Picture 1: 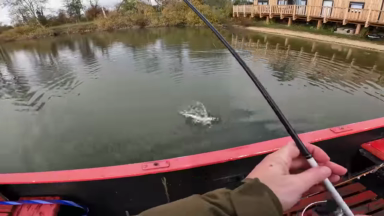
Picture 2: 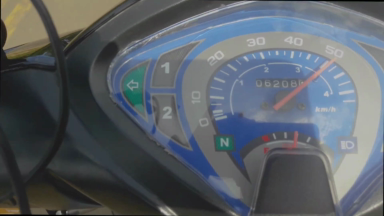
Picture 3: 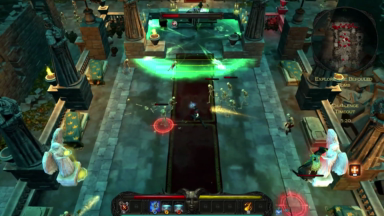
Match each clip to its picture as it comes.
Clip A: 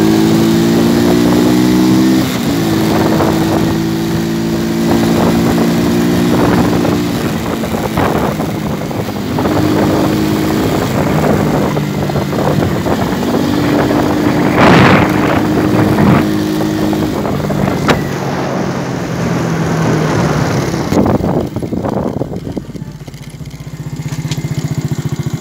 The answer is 2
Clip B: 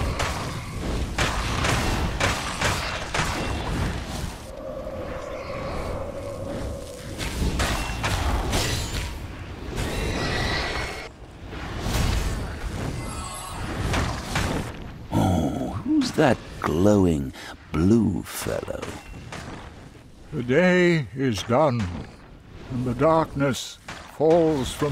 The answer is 3